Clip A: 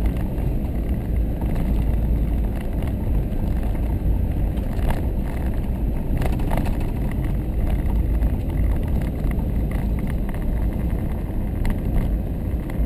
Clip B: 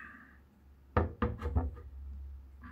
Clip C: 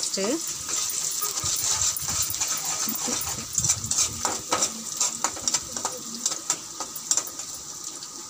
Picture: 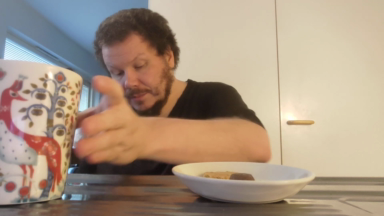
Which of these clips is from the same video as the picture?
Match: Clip B